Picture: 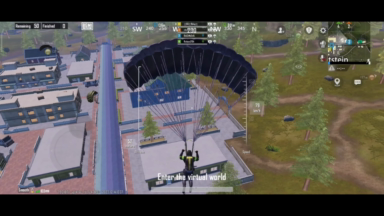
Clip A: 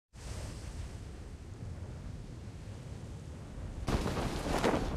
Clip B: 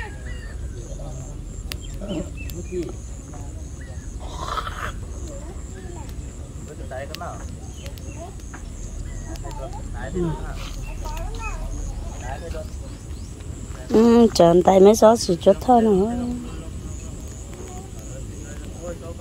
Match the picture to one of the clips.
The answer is A